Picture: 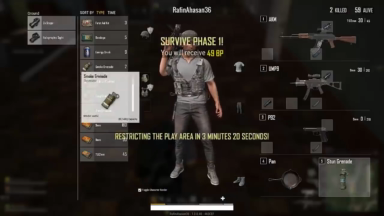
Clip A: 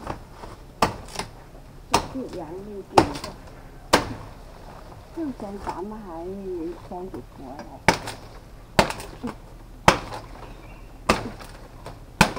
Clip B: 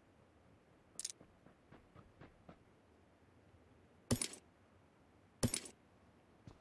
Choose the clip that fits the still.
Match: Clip B